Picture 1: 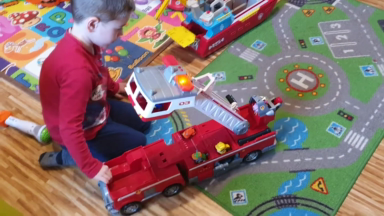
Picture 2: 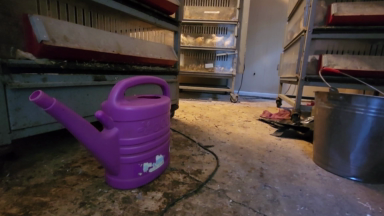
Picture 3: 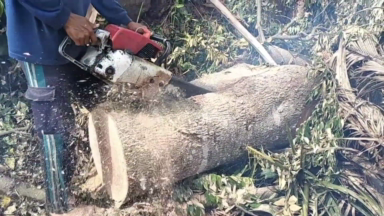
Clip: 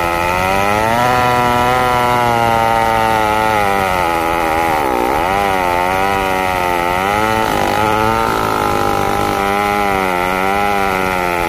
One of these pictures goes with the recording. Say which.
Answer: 3